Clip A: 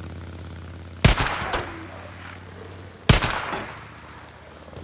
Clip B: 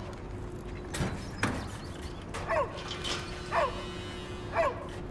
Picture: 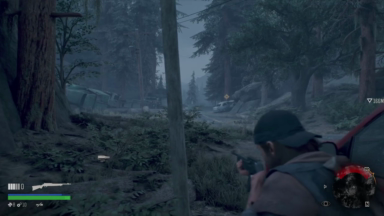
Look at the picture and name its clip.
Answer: A